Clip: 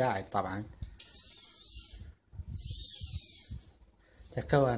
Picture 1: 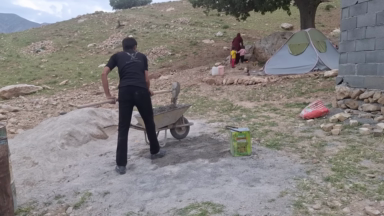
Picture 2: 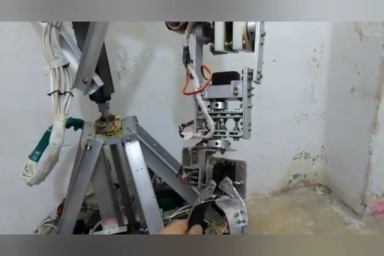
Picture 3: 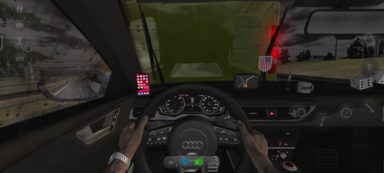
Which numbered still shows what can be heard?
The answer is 2